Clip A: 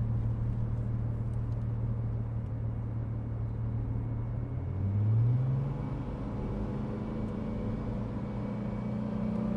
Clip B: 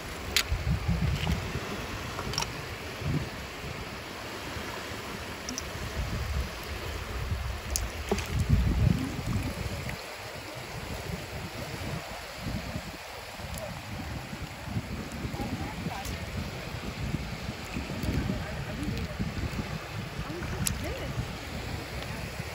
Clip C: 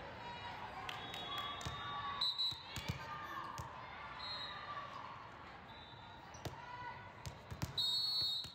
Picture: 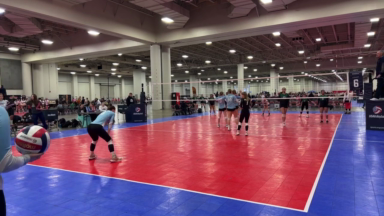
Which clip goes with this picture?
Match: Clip C